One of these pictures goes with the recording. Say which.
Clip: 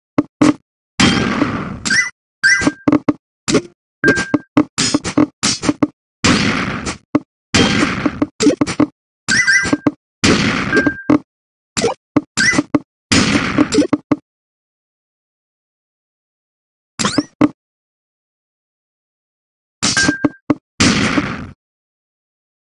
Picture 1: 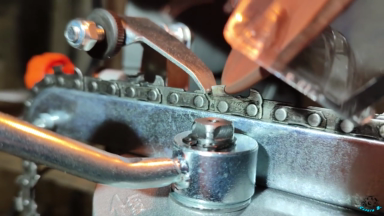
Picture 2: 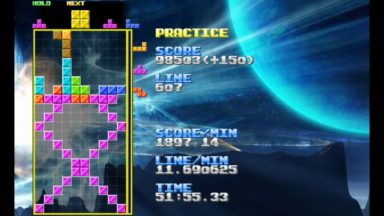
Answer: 2